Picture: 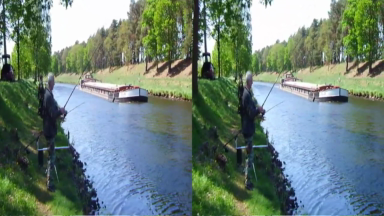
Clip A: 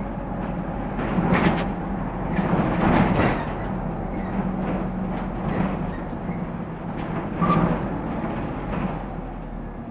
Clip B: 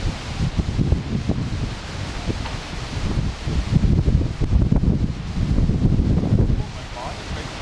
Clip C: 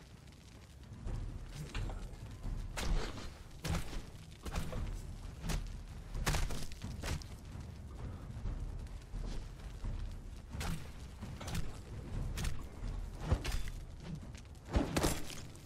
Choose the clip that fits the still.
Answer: B